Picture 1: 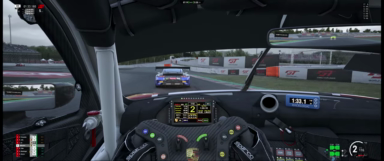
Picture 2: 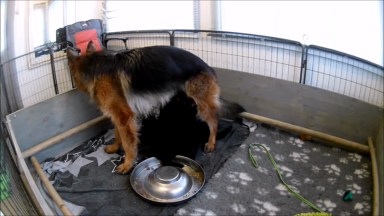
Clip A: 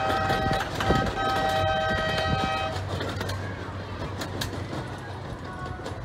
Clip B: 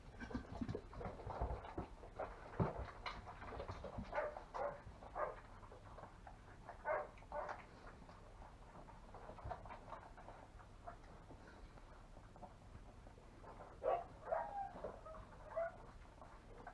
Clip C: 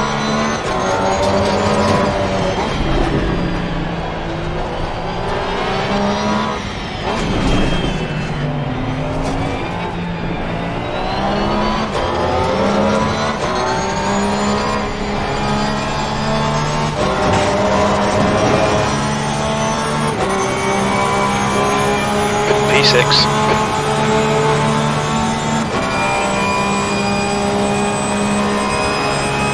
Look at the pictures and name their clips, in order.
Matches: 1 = C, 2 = B